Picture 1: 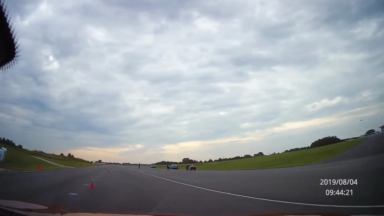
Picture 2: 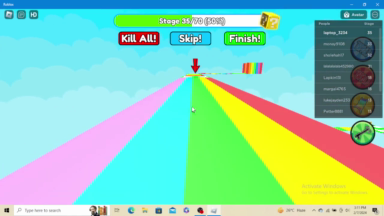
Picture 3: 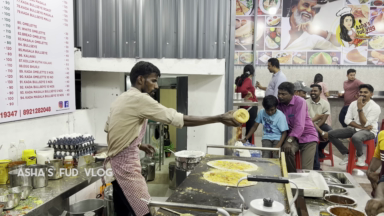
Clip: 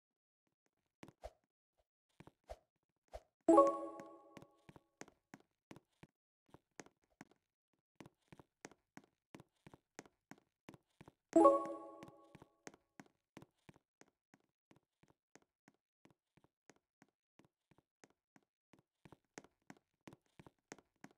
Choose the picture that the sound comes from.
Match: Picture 2